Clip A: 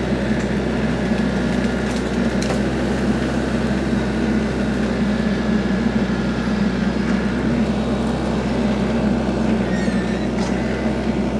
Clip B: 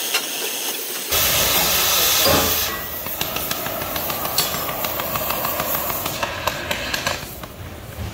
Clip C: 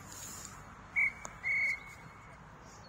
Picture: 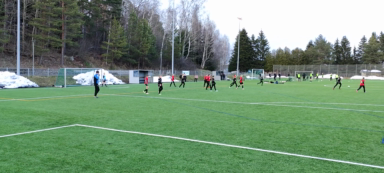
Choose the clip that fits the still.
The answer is C